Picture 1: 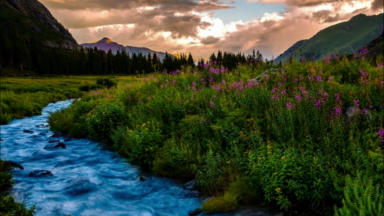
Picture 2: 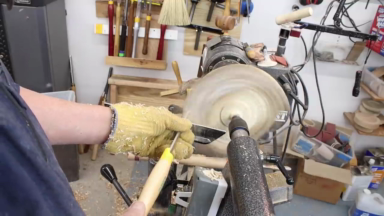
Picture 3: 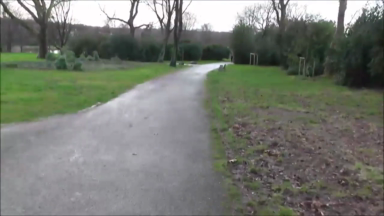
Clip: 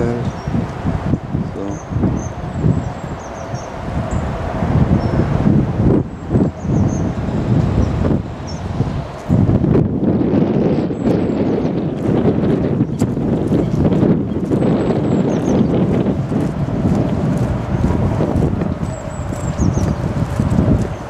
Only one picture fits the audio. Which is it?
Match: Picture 3